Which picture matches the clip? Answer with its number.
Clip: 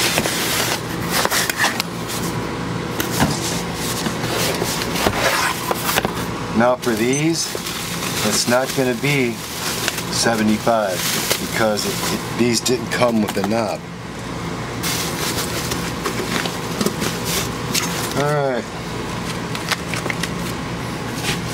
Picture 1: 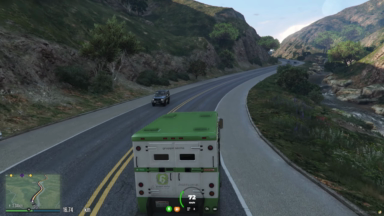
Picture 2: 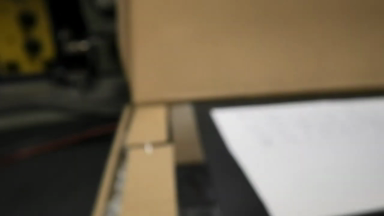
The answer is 2